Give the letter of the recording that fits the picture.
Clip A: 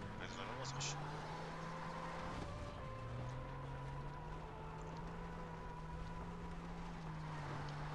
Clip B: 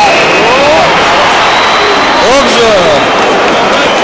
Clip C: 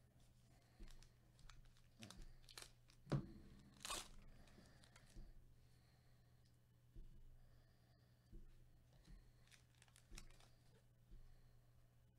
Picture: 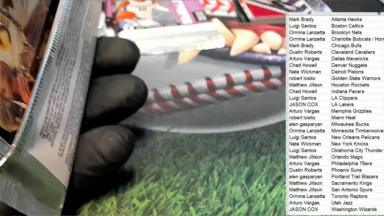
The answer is C